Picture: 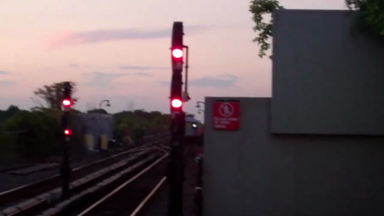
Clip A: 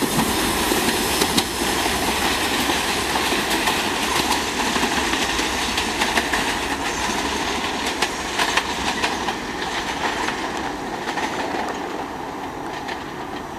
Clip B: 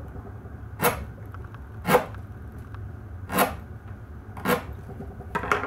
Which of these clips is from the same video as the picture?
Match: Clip A